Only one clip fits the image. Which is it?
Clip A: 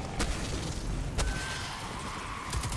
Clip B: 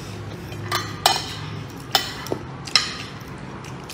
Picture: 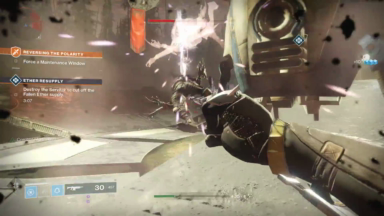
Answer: A